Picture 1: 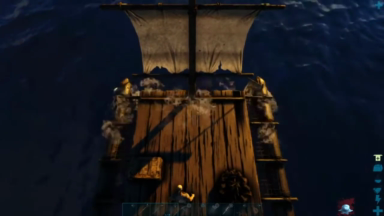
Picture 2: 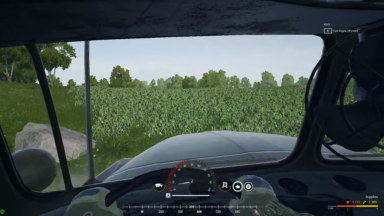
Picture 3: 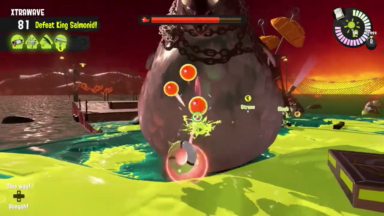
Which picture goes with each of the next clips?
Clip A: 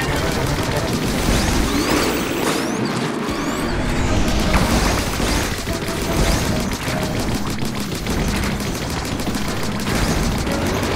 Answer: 3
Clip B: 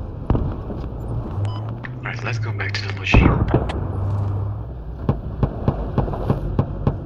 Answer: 2